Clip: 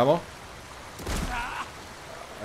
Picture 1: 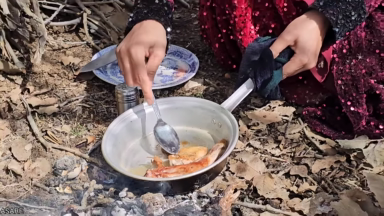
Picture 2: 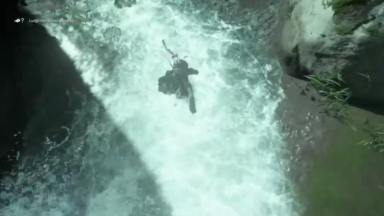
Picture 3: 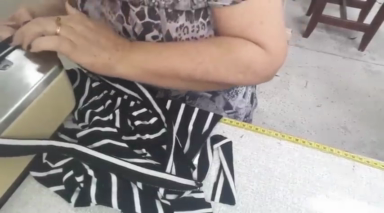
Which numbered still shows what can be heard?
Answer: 2